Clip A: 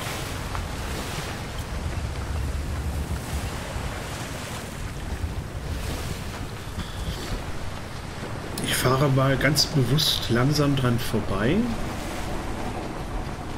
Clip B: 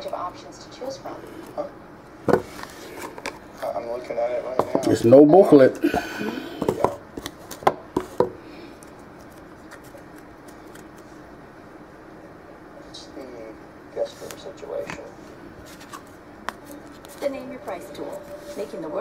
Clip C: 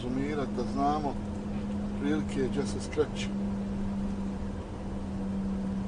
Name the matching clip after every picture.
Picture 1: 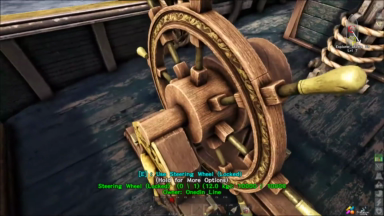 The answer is A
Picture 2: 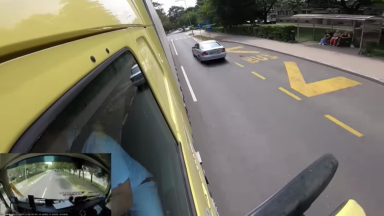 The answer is C